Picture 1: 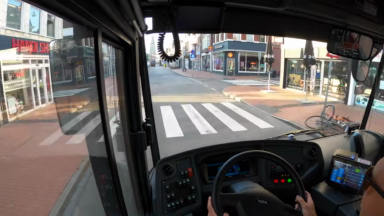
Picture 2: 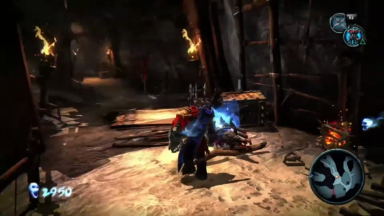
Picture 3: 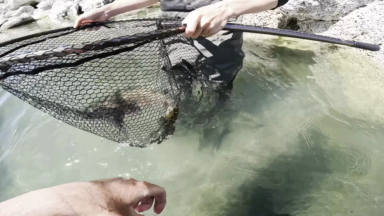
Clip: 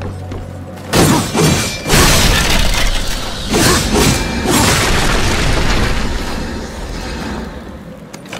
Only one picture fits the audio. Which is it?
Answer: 2